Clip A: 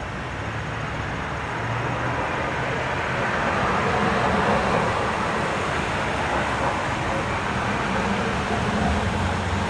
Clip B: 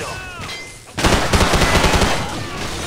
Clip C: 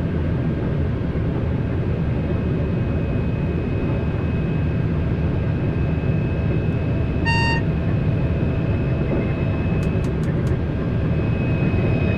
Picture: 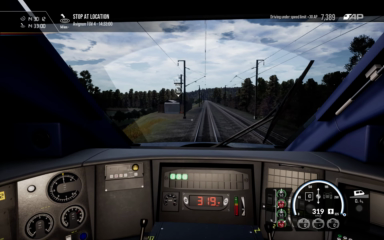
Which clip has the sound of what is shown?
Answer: C